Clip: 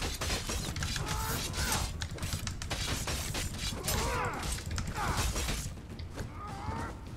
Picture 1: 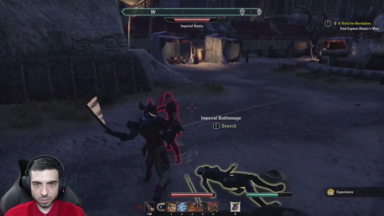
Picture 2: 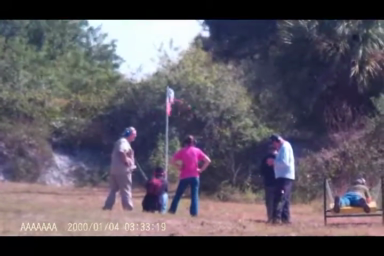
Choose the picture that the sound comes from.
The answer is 1